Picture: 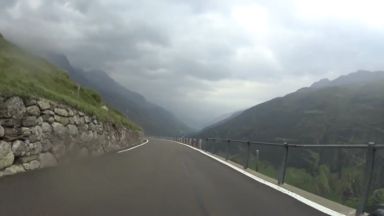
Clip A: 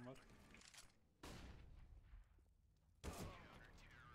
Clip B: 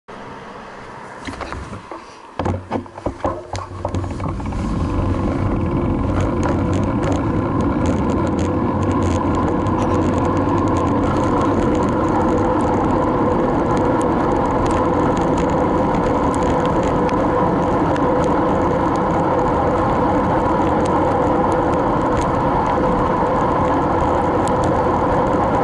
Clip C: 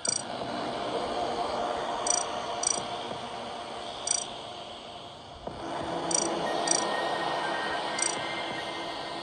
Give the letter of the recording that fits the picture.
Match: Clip B